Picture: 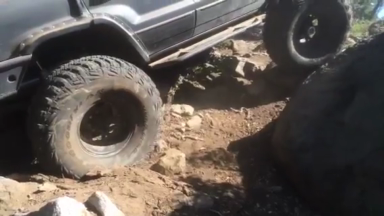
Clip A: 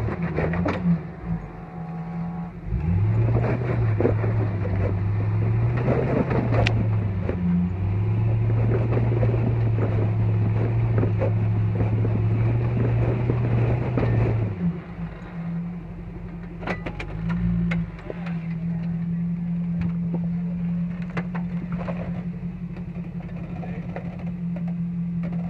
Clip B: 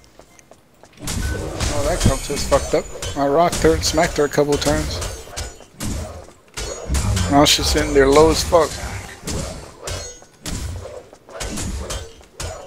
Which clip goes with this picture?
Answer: A